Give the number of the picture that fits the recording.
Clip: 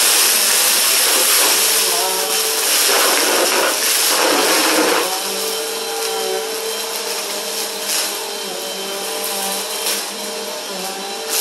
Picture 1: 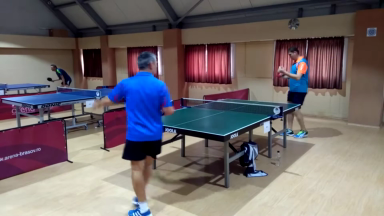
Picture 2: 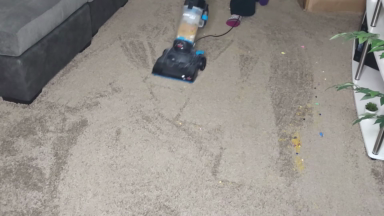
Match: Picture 2